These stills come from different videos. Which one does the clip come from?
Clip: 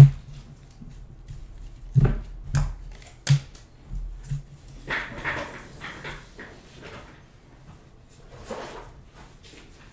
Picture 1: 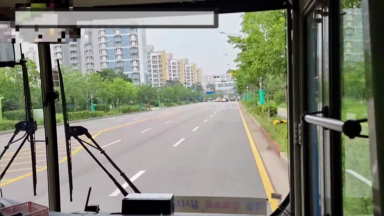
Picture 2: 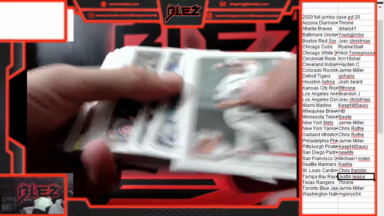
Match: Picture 2